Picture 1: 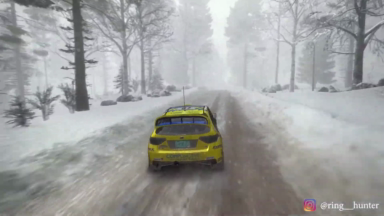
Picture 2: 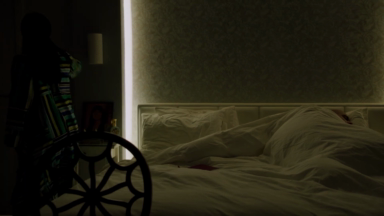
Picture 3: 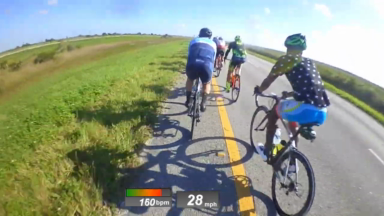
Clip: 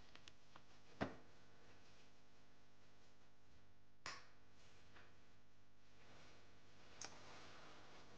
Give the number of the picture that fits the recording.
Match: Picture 2